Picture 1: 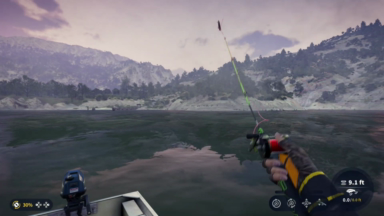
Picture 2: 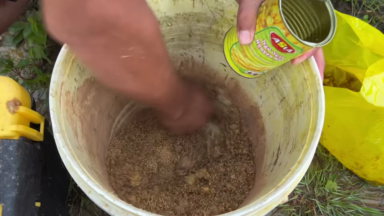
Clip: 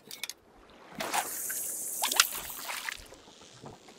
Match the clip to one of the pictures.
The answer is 1